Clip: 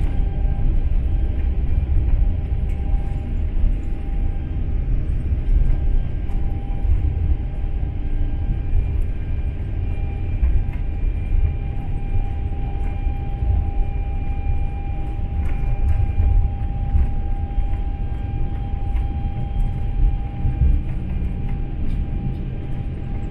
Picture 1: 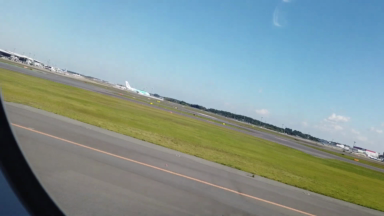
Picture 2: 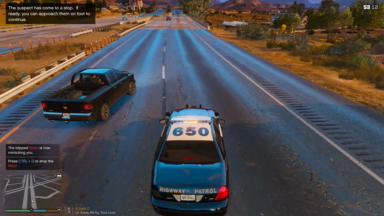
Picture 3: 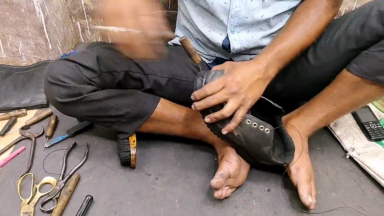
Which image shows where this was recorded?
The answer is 1